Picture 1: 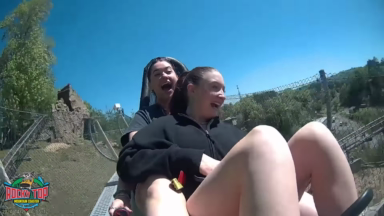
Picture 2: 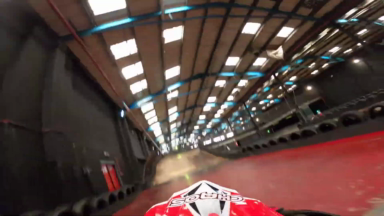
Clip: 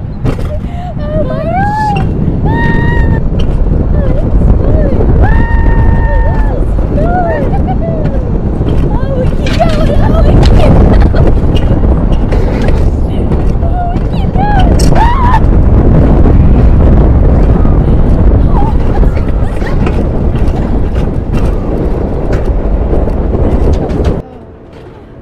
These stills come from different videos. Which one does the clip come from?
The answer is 1